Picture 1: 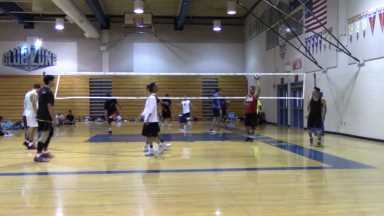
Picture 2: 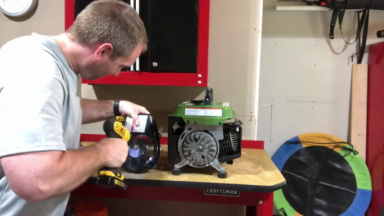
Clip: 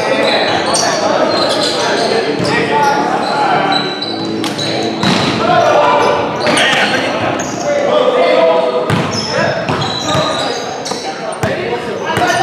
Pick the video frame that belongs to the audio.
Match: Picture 1